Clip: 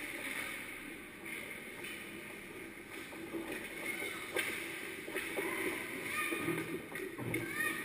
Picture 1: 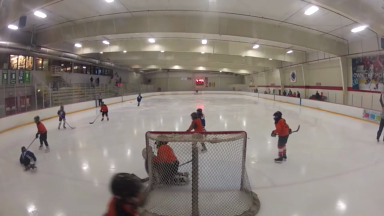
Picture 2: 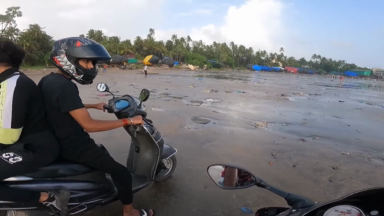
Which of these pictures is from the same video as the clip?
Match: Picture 1